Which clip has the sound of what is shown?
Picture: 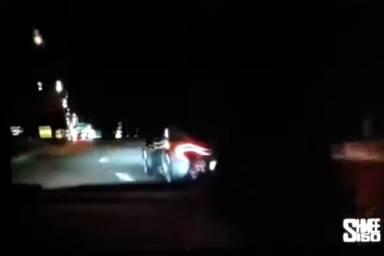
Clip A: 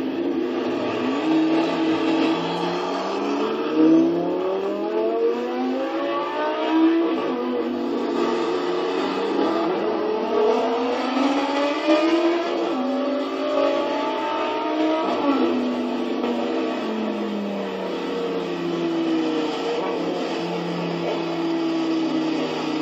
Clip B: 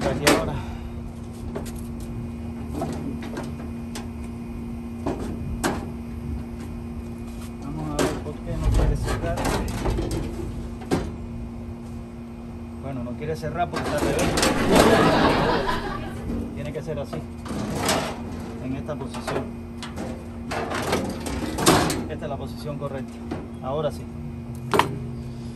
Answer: A